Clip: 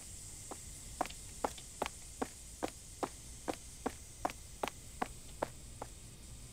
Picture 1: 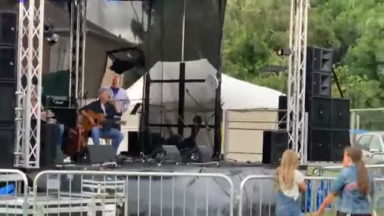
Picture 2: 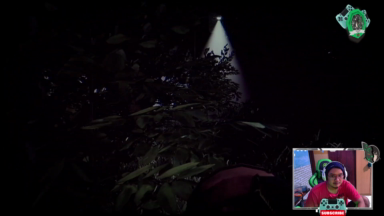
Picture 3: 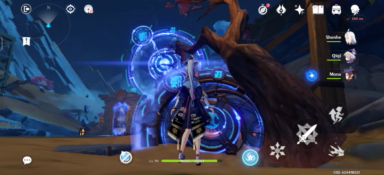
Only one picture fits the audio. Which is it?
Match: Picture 2